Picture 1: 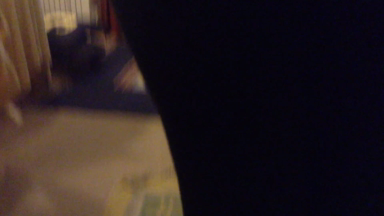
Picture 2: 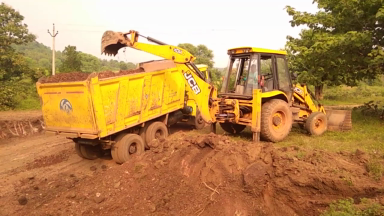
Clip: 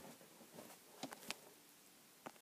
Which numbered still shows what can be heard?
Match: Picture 1